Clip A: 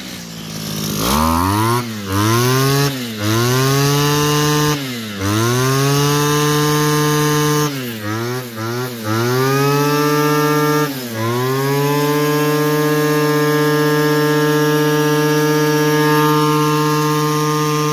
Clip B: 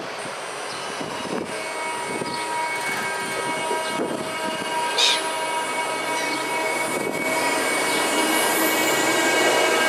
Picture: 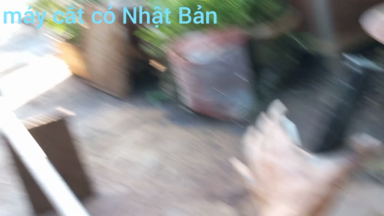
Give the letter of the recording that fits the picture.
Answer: A